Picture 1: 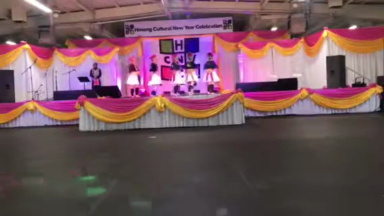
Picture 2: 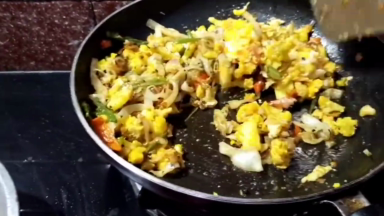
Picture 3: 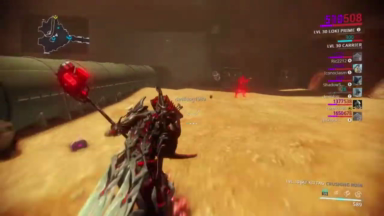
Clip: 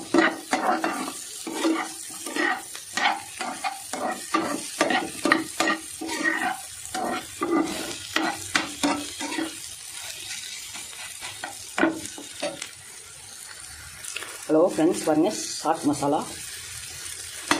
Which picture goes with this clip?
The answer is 2